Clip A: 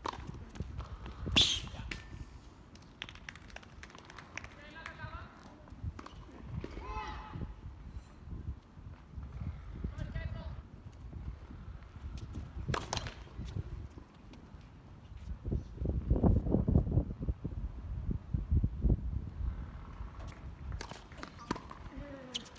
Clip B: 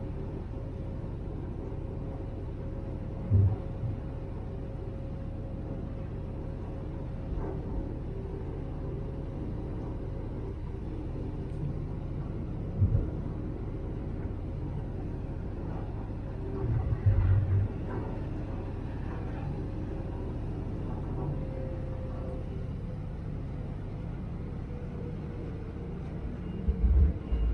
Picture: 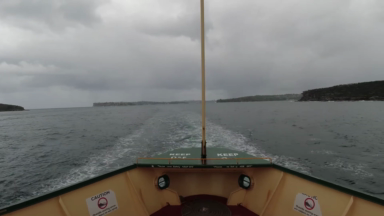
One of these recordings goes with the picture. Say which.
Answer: B